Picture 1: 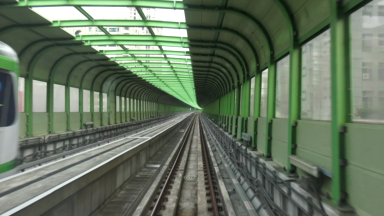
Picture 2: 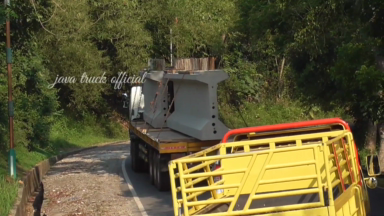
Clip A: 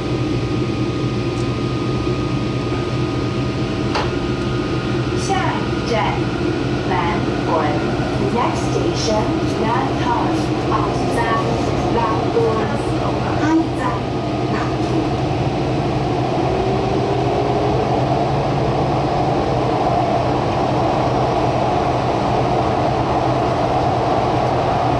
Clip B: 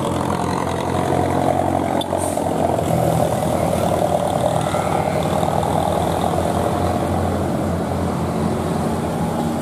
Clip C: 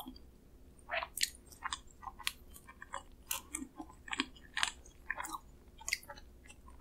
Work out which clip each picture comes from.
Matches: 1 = A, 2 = B